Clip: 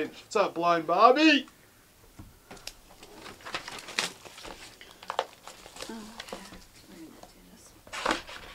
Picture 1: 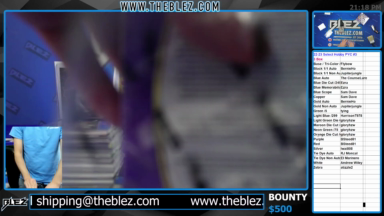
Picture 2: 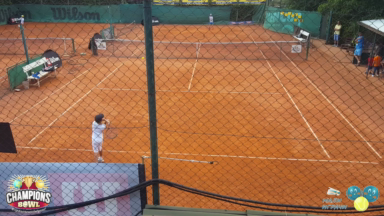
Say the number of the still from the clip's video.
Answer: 1